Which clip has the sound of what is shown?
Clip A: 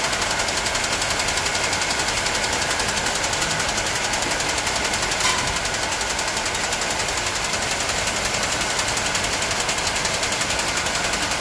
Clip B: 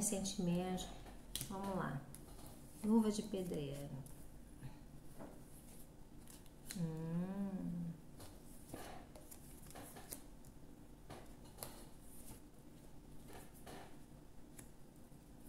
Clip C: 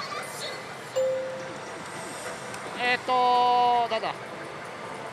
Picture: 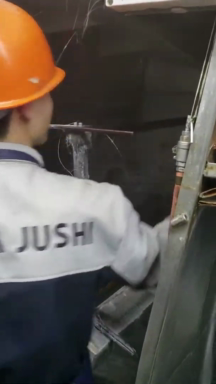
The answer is A